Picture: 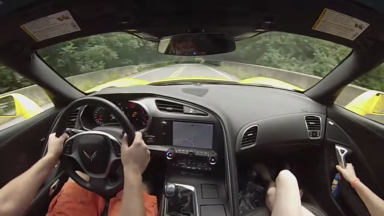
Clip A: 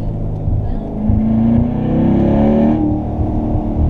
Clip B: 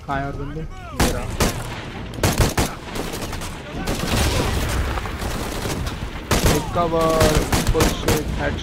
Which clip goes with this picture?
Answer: A